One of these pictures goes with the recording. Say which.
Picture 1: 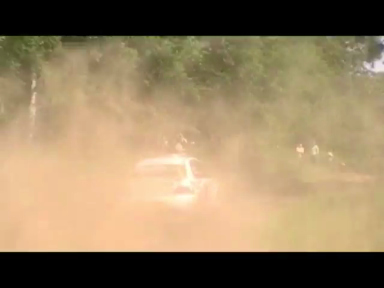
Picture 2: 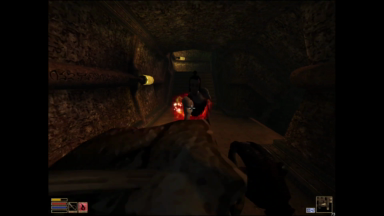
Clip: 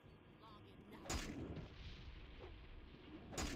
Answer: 2